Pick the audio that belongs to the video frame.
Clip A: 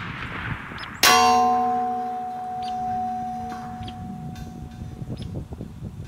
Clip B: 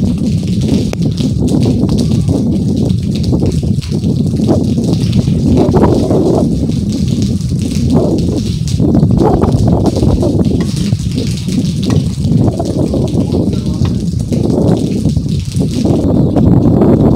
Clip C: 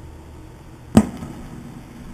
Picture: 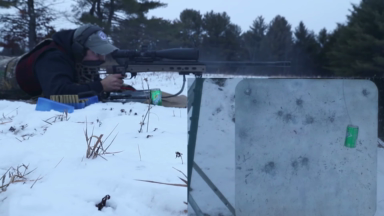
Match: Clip A